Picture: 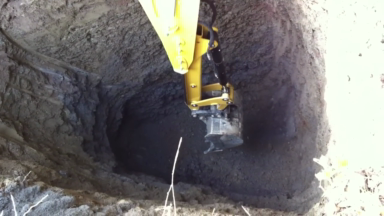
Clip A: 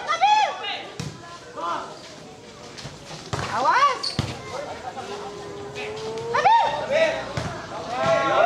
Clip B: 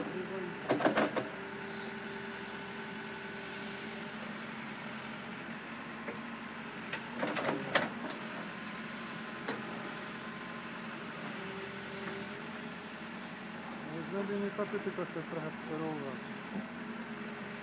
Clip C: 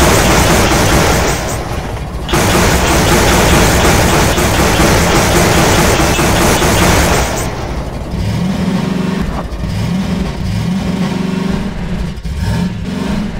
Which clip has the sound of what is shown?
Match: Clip B